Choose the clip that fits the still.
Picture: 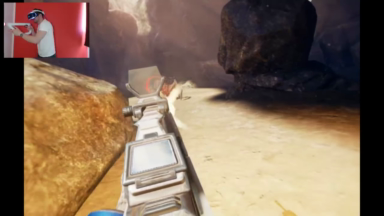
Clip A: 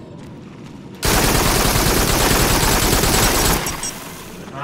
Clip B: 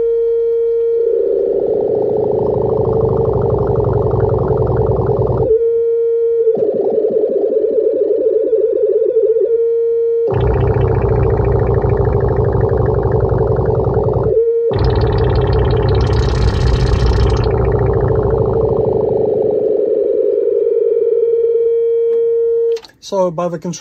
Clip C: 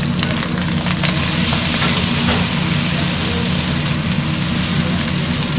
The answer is A